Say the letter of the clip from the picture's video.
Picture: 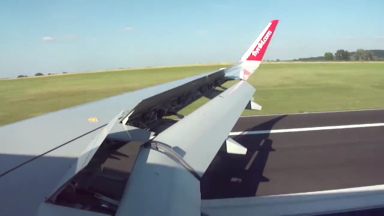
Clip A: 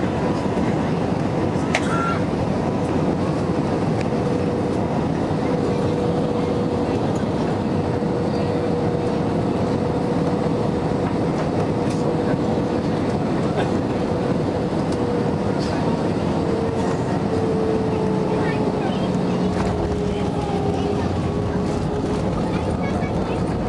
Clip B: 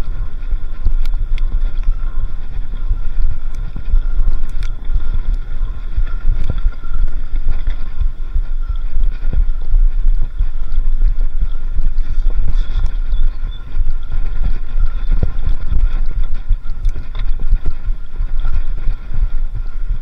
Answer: A